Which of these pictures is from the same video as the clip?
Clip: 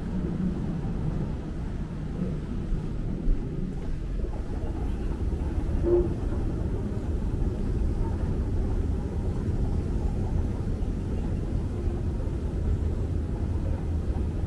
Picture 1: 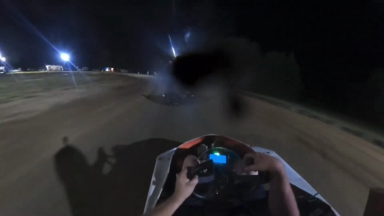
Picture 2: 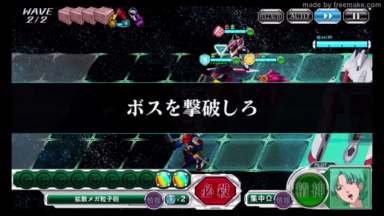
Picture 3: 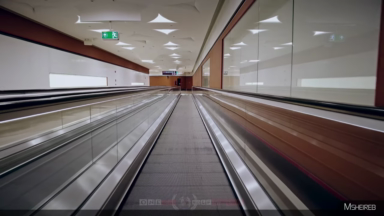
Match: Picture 3